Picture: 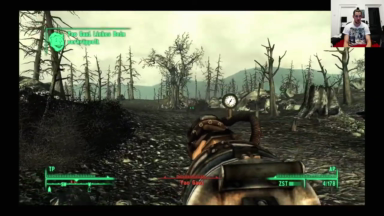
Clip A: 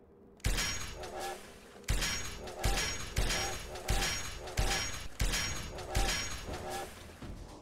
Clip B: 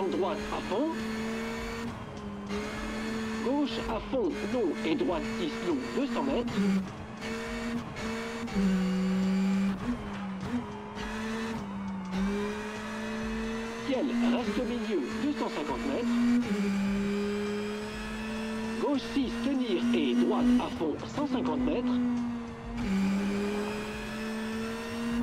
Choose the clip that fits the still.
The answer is A